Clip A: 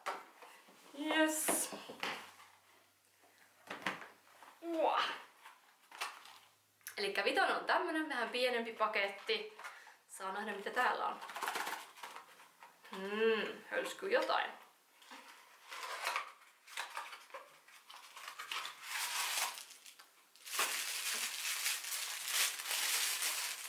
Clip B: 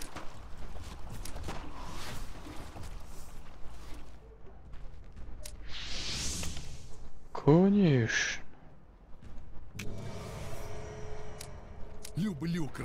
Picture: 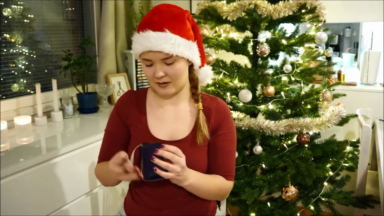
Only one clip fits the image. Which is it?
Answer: A